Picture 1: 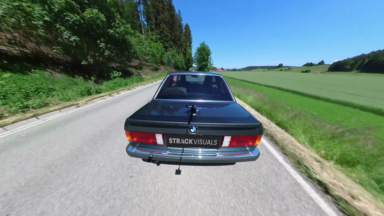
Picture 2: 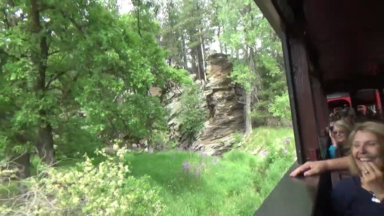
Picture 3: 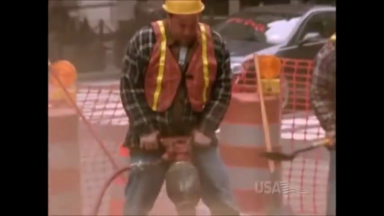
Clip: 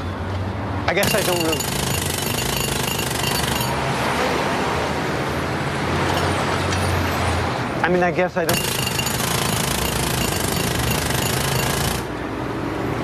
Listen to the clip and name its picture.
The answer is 3